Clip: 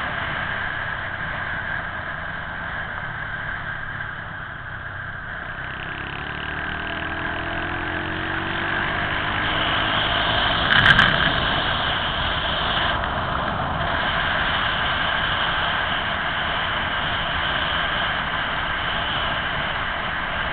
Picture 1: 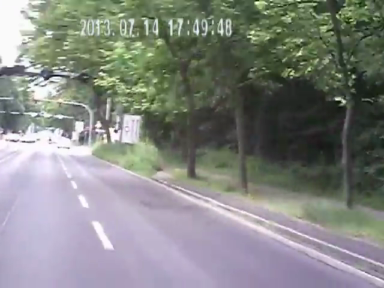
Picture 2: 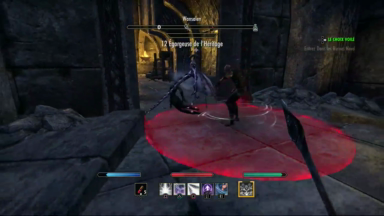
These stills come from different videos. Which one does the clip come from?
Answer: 1